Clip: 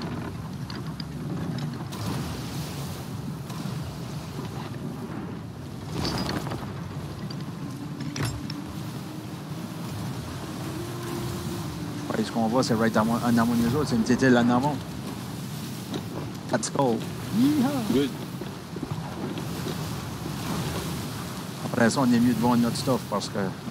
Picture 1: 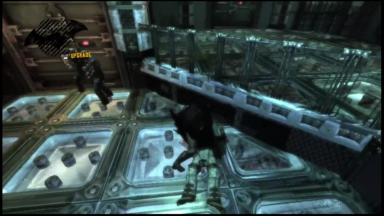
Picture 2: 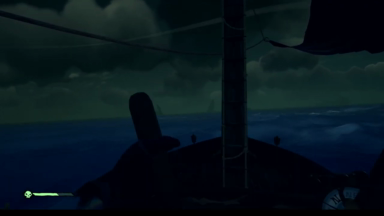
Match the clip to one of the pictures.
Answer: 2